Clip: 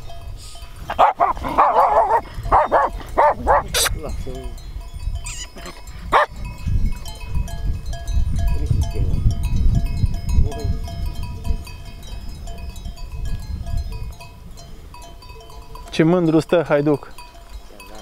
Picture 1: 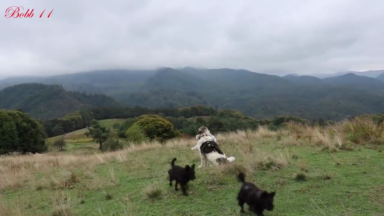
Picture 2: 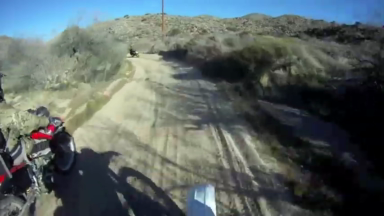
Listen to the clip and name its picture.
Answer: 1